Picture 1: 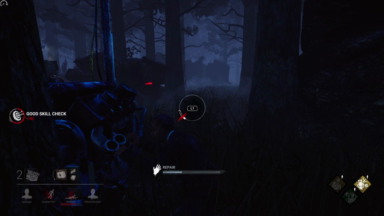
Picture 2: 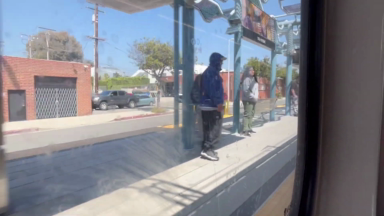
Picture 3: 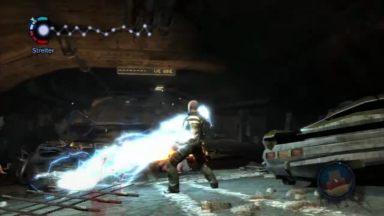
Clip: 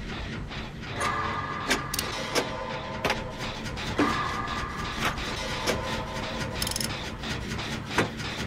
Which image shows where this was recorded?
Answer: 1